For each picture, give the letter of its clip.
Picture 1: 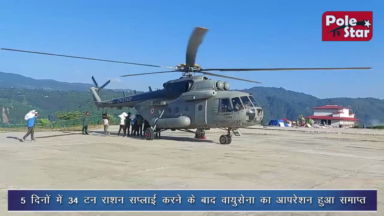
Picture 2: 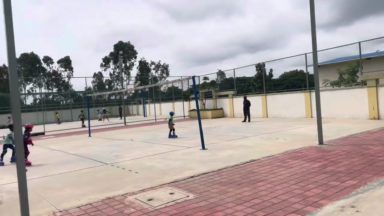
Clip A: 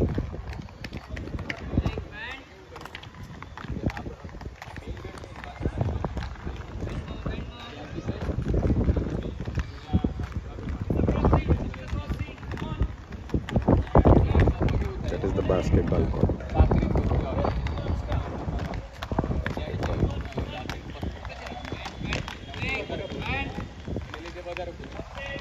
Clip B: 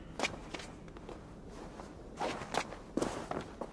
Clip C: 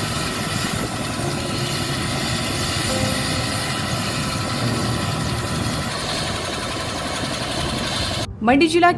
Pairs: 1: C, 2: A